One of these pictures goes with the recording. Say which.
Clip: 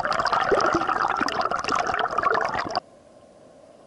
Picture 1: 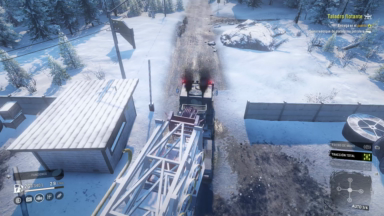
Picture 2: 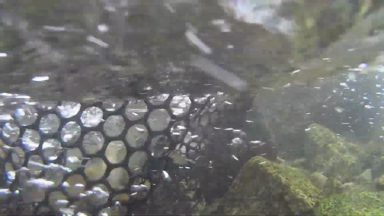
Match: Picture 2